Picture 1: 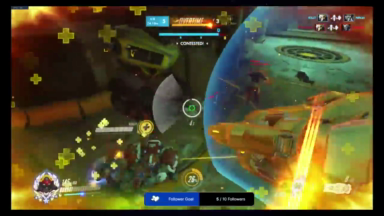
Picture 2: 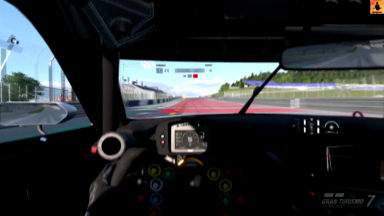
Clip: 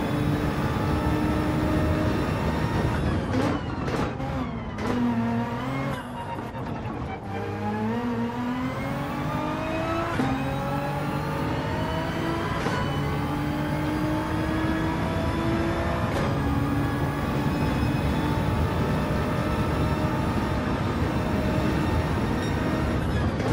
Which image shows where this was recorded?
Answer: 2